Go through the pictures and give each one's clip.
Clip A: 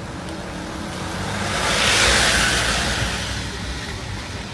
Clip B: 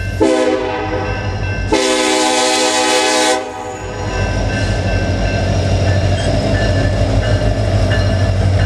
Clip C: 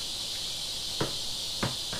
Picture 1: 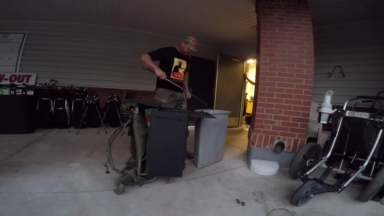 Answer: C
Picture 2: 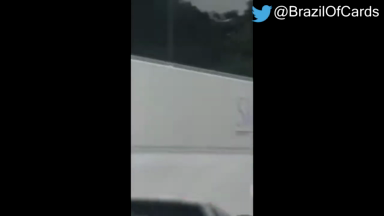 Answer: A